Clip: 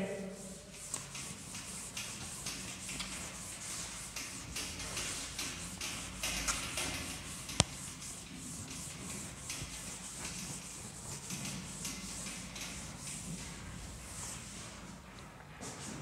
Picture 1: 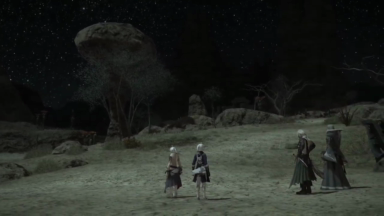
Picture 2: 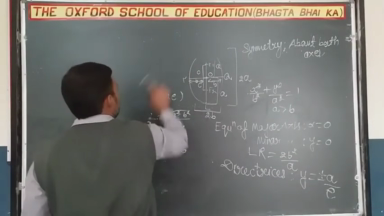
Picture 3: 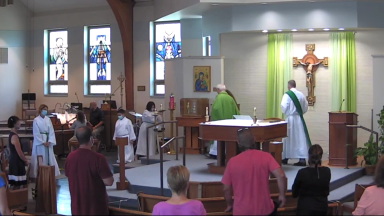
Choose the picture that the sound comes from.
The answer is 2